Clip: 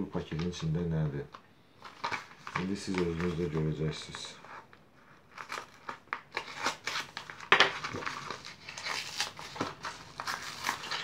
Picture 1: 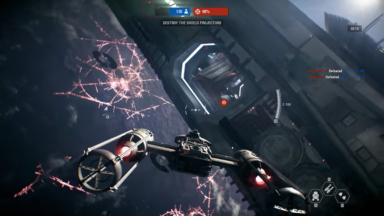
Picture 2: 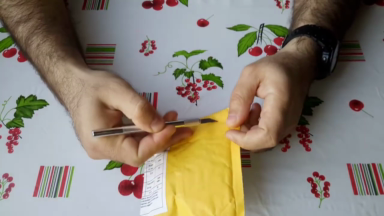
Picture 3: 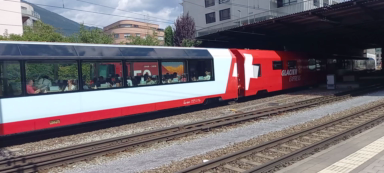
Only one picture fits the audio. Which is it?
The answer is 2